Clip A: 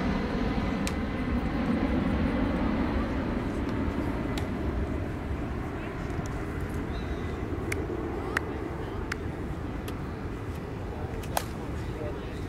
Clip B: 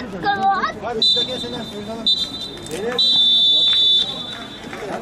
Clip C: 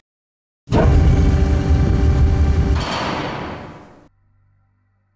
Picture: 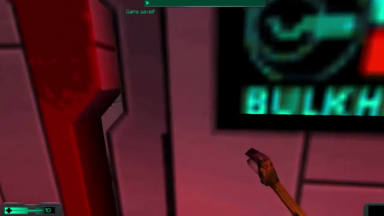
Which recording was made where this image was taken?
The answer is C